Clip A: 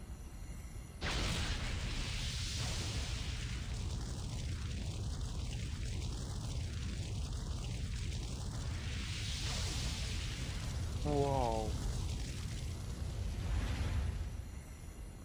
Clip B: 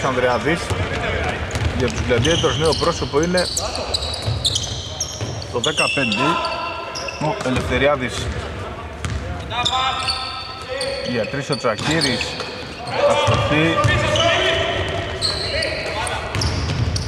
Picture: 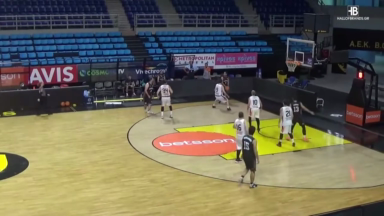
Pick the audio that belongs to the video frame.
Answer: B